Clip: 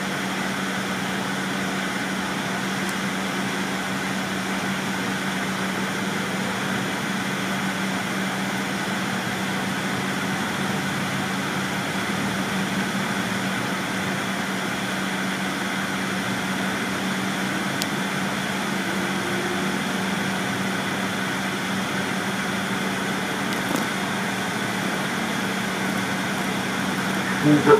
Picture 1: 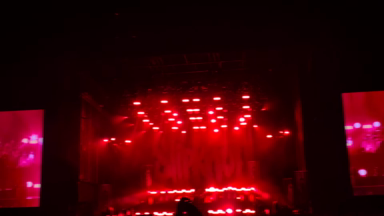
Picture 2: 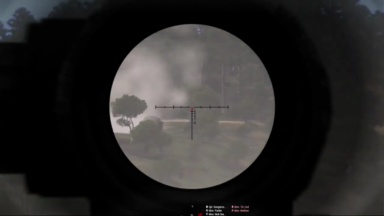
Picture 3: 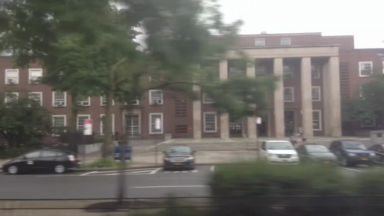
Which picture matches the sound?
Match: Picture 3